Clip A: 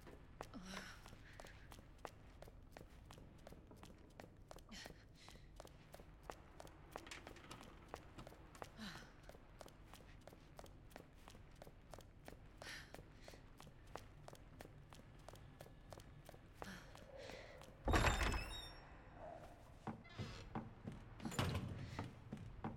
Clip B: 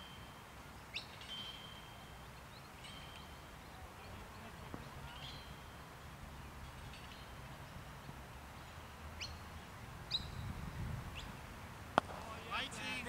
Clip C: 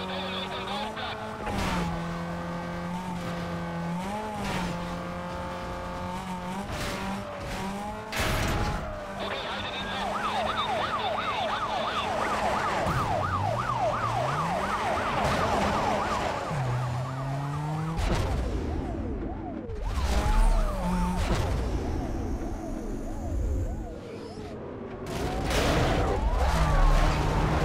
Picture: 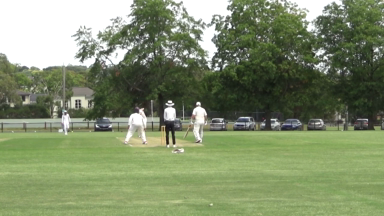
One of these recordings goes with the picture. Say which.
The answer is B